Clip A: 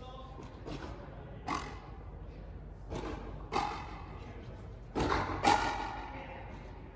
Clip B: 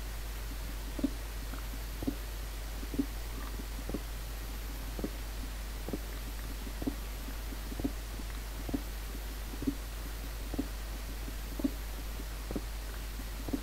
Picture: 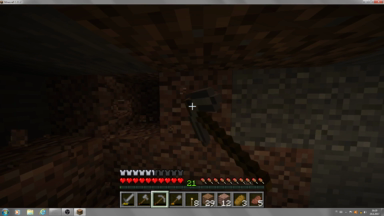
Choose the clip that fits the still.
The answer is B